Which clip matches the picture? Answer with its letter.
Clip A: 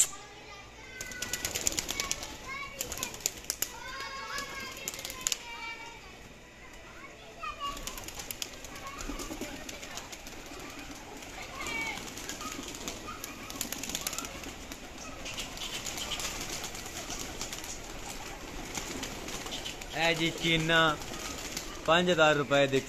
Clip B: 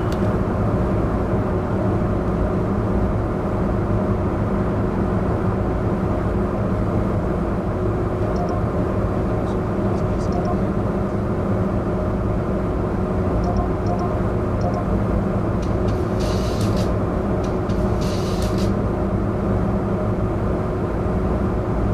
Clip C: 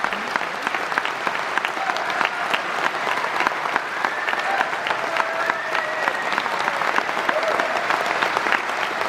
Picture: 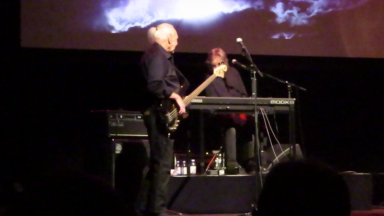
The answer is C